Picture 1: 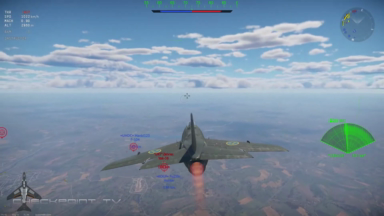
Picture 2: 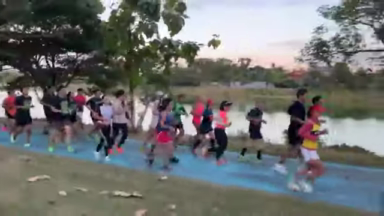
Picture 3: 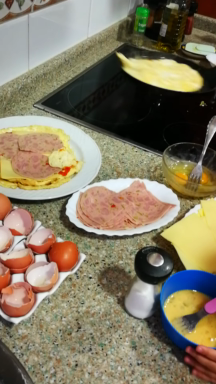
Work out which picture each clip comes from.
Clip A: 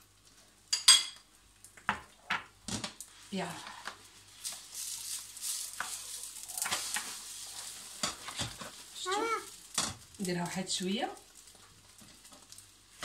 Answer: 3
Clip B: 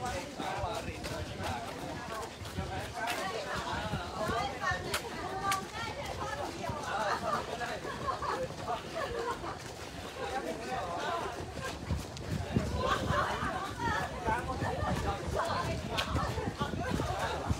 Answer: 2